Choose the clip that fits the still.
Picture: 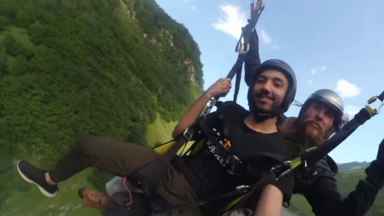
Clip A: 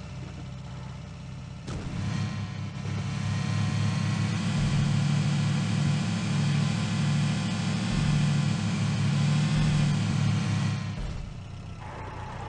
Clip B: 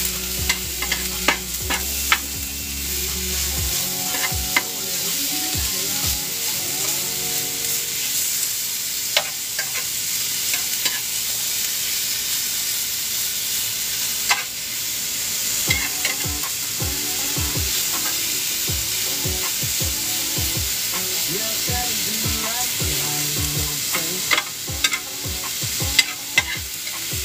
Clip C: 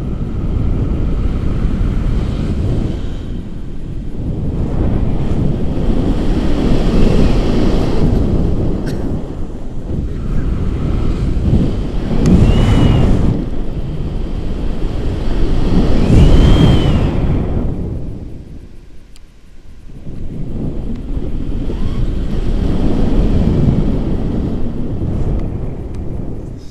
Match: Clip C